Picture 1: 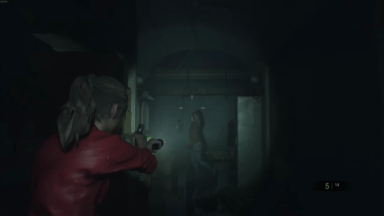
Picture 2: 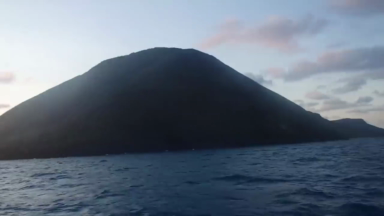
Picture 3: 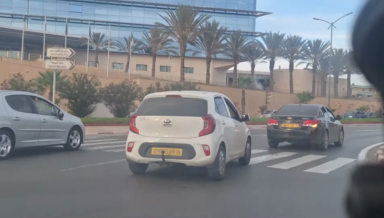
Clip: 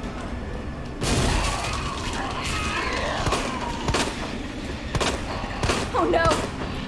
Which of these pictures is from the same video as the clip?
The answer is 1